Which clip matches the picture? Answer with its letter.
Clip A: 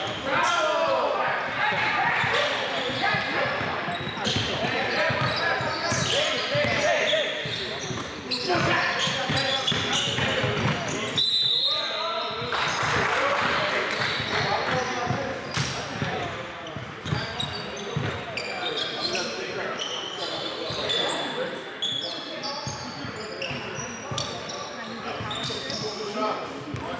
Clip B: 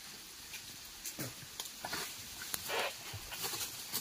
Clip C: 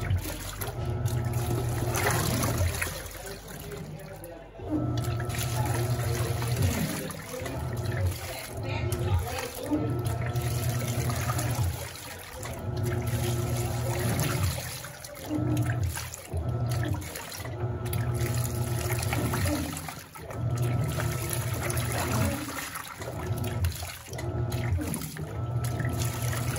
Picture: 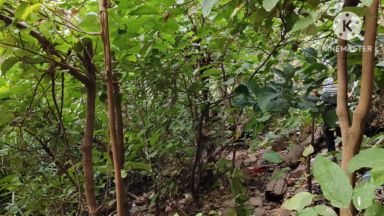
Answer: B